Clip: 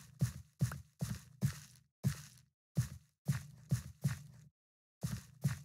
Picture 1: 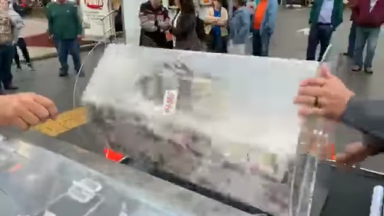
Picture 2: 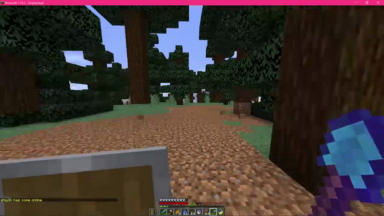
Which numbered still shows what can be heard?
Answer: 2